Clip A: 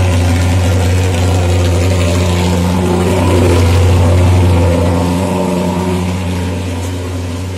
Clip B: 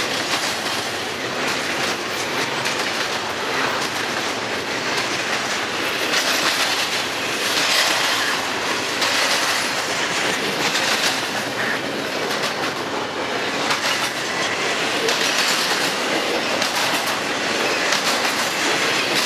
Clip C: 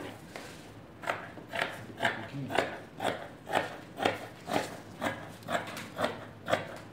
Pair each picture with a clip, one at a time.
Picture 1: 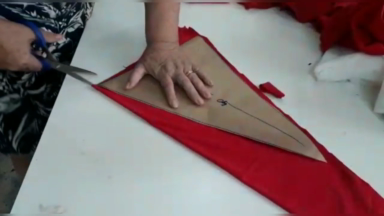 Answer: C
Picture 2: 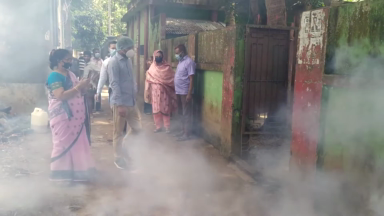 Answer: A